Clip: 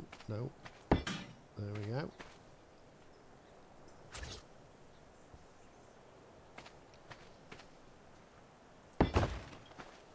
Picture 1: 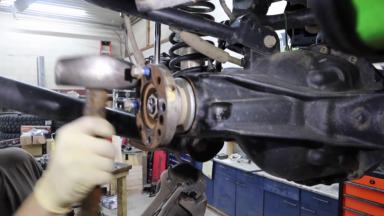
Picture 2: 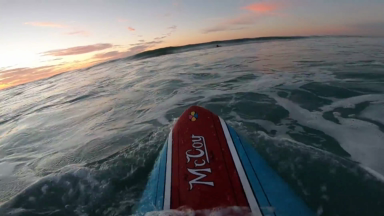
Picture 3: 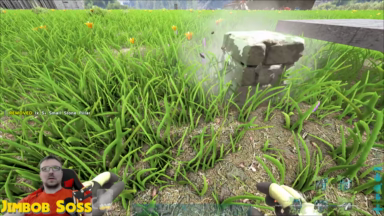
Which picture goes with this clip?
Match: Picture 3